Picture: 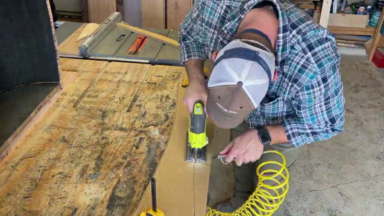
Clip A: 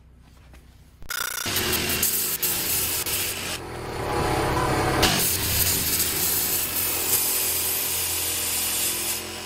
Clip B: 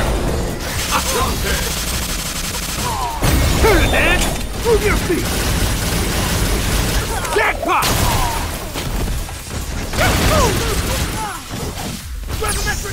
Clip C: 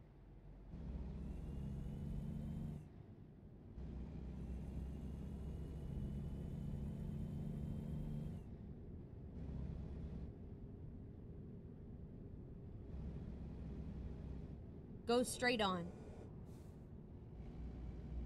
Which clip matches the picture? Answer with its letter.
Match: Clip A